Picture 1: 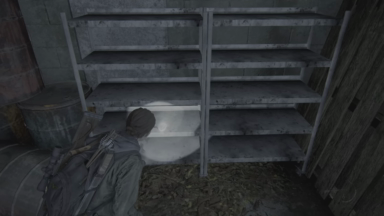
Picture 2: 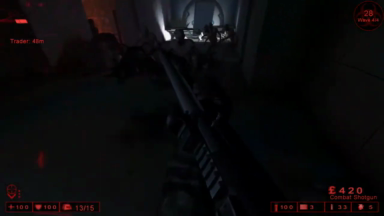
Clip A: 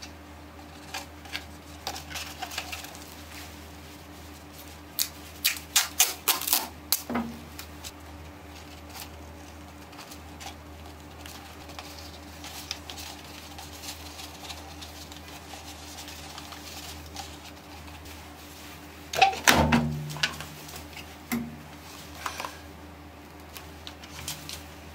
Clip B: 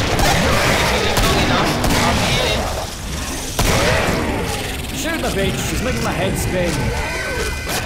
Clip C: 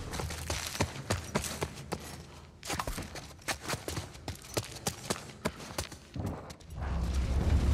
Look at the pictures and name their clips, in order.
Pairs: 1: C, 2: B